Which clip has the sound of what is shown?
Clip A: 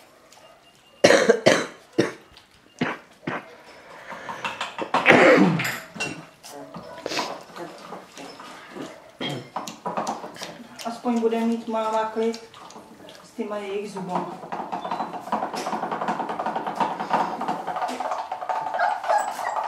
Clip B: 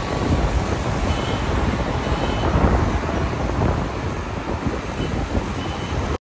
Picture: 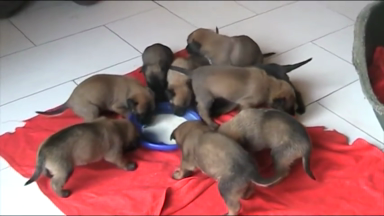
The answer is A